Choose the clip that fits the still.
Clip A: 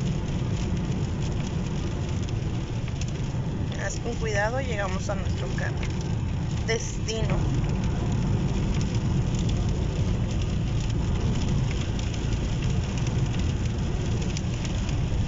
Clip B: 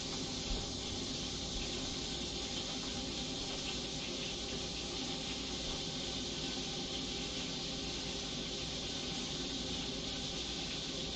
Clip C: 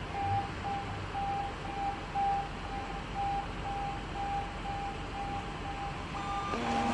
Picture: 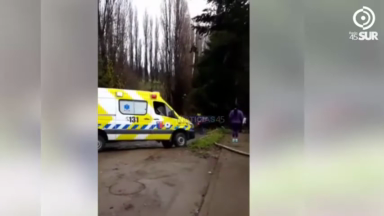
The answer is C